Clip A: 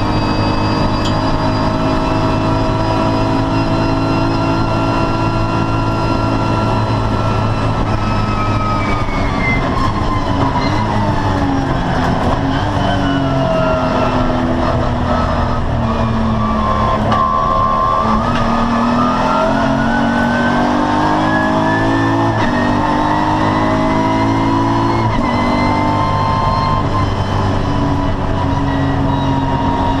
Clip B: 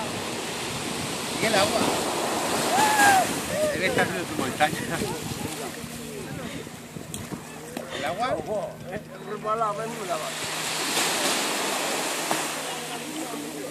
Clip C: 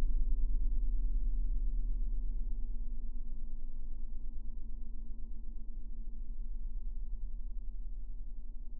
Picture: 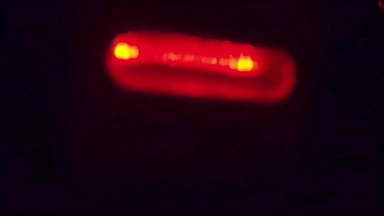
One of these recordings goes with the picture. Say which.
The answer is C